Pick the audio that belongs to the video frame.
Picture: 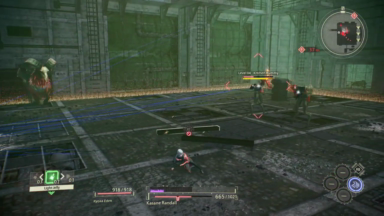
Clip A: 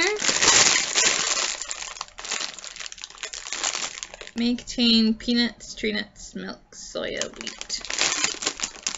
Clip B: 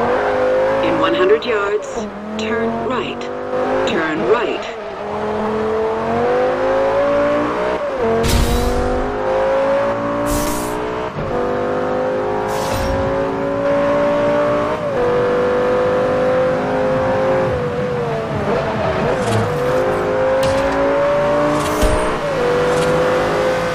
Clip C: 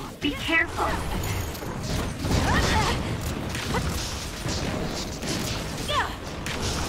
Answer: C